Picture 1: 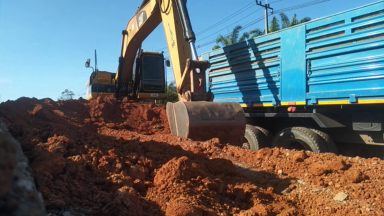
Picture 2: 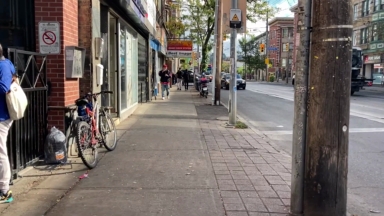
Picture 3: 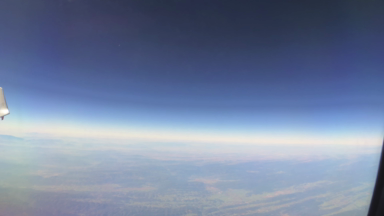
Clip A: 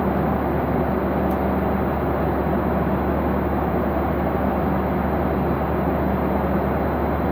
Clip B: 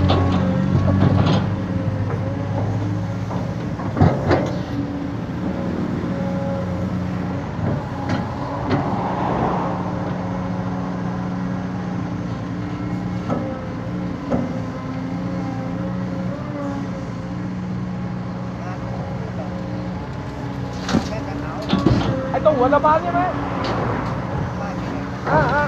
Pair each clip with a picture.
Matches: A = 3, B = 1